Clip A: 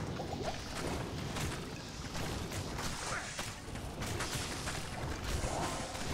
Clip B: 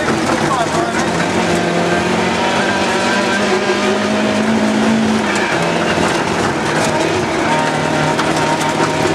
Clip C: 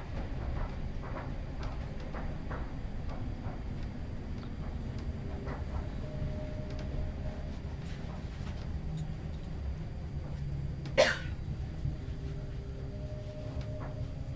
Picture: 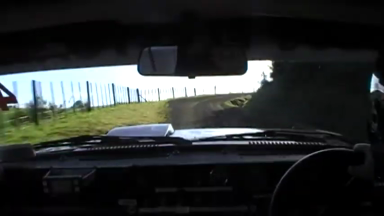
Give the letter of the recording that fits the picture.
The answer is B